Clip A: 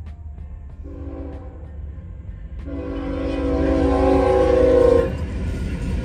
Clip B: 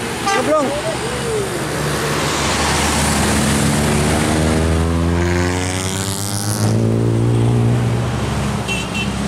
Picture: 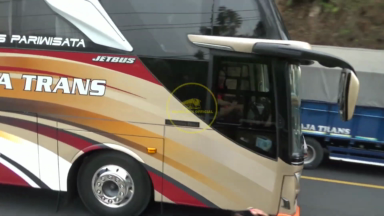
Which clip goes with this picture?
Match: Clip B